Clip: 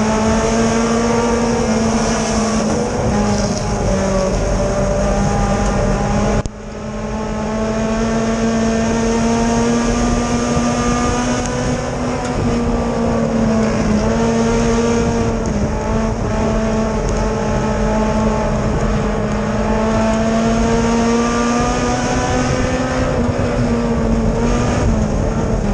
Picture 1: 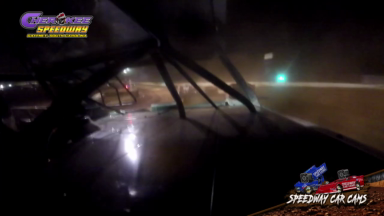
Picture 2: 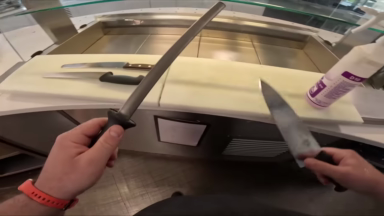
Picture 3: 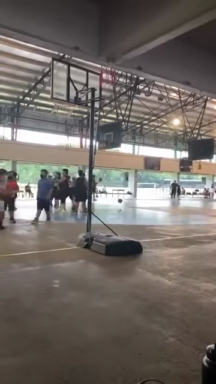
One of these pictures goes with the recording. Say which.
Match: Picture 1